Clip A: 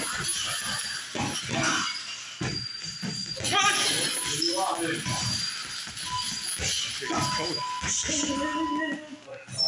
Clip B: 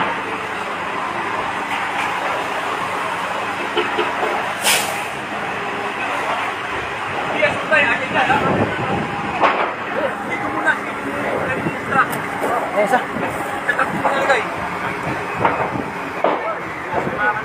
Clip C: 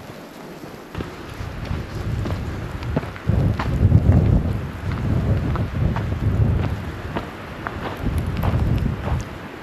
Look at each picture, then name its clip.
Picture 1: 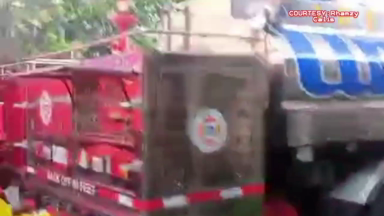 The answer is B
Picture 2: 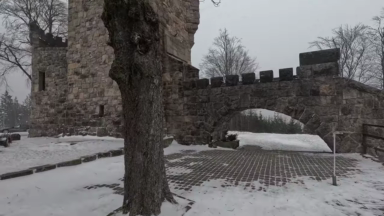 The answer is C